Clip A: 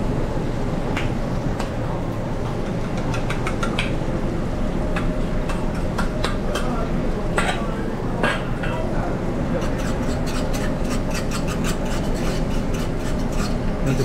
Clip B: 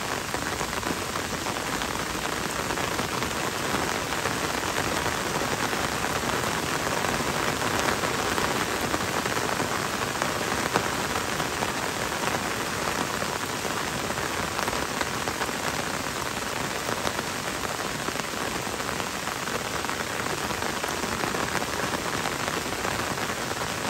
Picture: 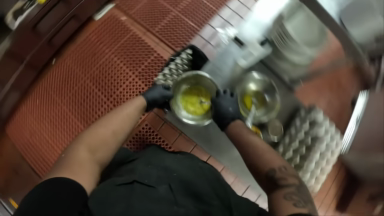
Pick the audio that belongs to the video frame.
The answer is A